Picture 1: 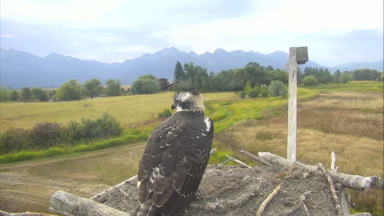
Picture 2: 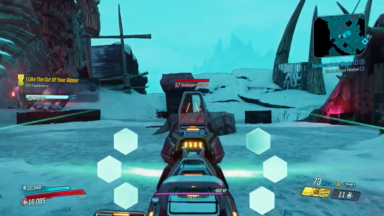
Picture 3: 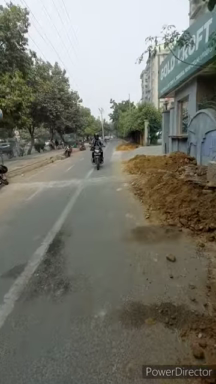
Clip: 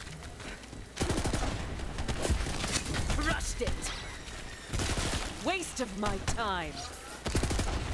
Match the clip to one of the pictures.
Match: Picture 2